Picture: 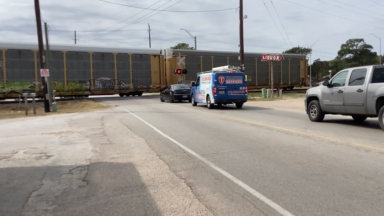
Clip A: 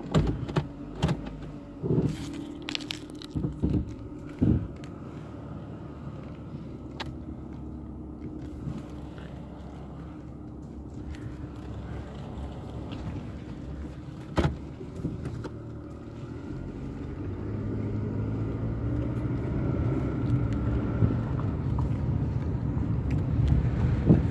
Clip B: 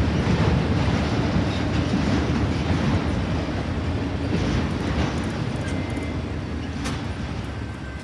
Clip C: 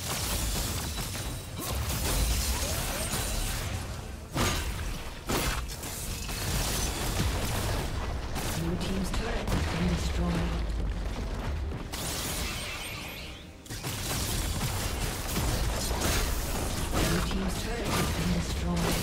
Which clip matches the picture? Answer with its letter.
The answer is B